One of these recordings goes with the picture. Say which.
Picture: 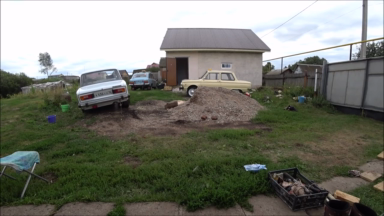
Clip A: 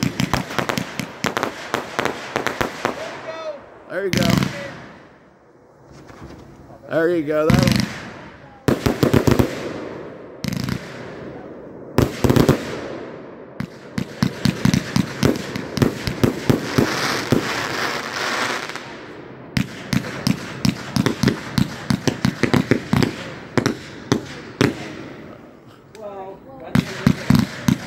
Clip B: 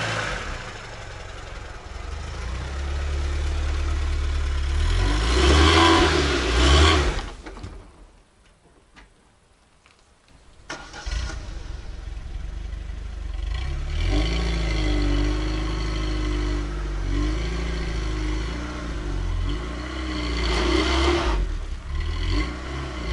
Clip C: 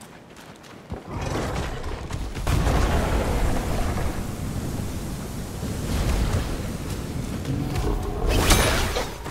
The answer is B